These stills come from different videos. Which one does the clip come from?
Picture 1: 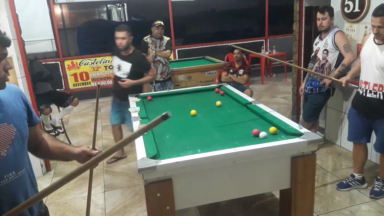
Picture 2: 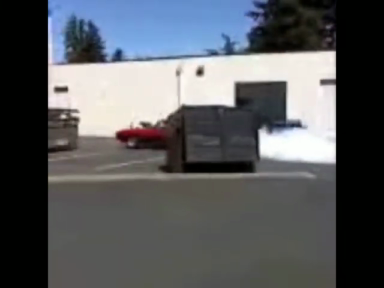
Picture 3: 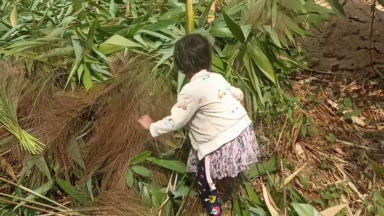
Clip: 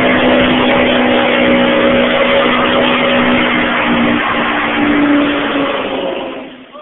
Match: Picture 2